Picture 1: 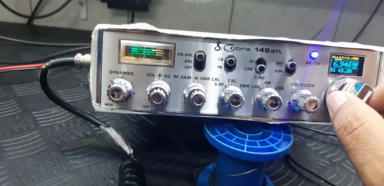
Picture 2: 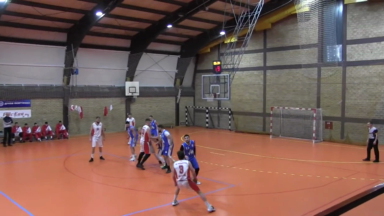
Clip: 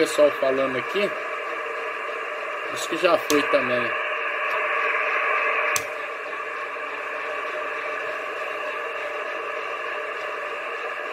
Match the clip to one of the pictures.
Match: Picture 1